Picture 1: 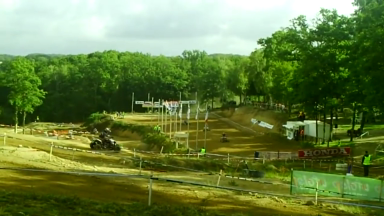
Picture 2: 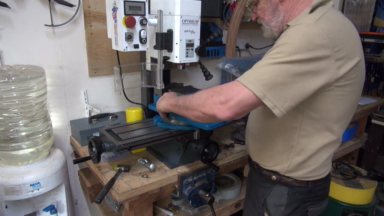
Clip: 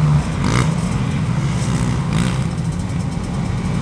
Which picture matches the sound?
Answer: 1